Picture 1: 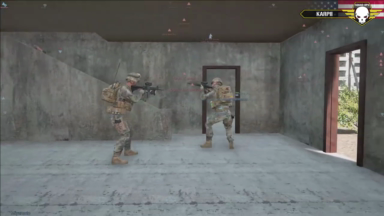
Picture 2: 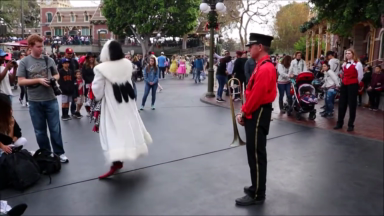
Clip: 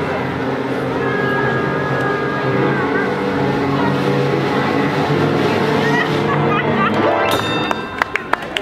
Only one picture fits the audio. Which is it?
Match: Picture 2